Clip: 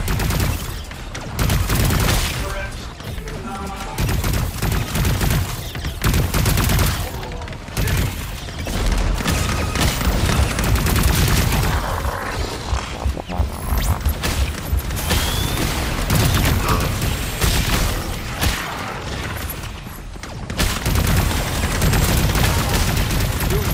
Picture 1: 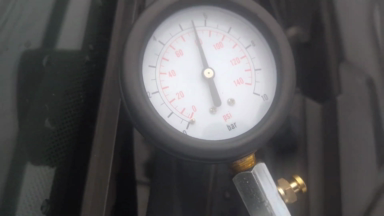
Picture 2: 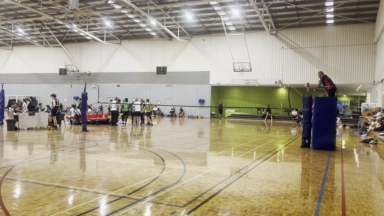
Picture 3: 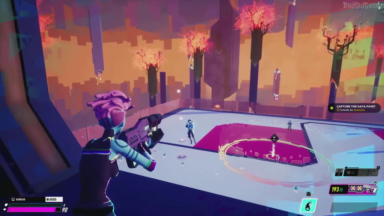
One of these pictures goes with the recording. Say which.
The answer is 3